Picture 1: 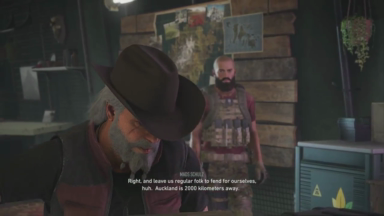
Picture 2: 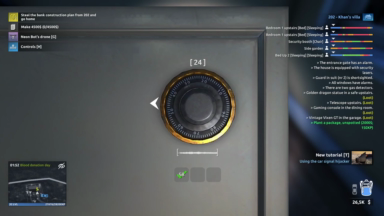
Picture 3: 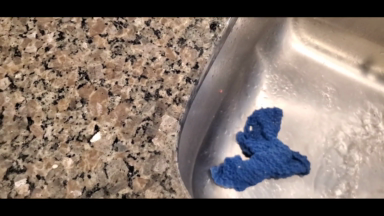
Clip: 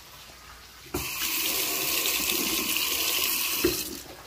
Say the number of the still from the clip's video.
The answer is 3